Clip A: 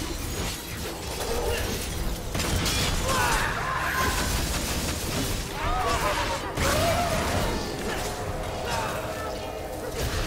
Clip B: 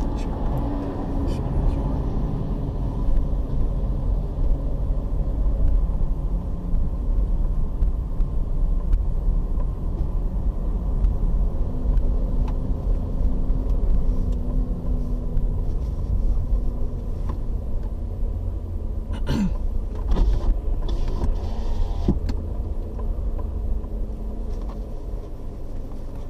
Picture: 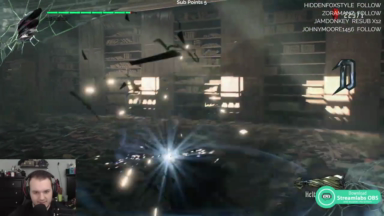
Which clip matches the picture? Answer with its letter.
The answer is A